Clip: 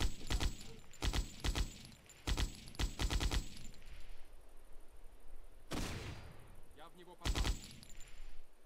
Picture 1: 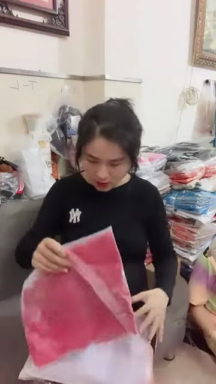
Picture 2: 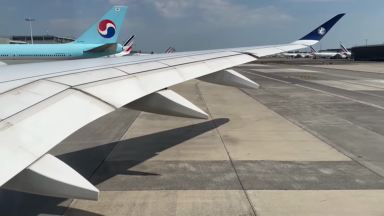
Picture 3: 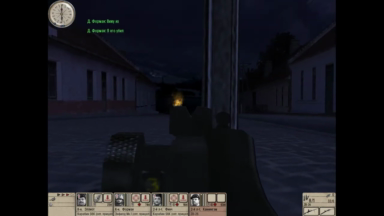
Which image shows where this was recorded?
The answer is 3